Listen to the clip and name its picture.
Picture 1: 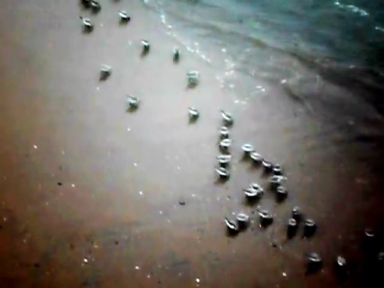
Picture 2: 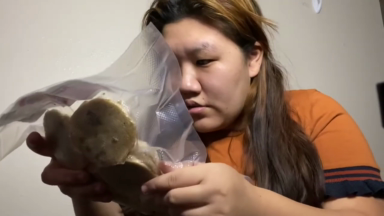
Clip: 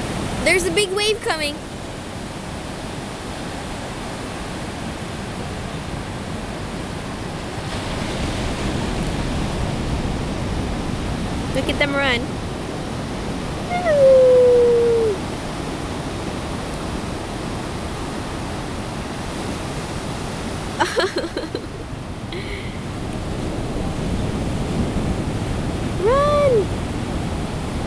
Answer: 1